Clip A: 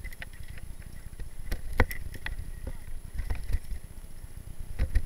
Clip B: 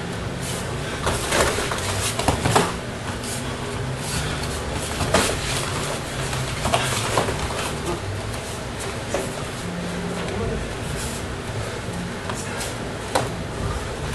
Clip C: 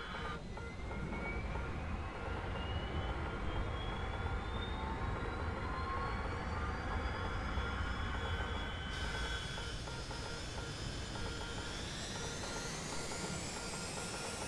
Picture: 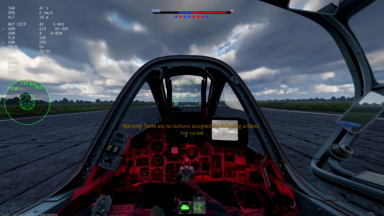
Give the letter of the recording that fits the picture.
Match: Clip C